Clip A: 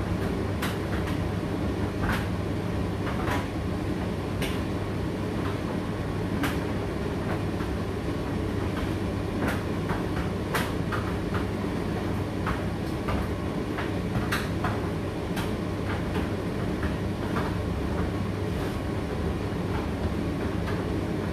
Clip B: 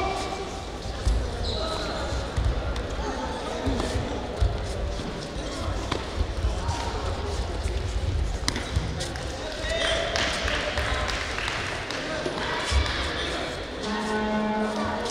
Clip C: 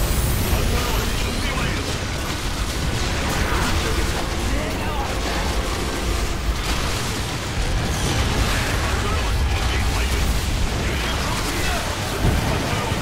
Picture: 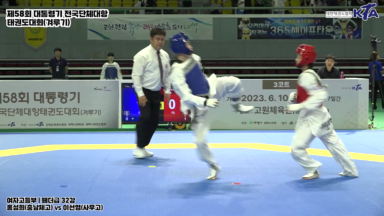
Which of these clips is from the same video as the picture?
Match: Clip B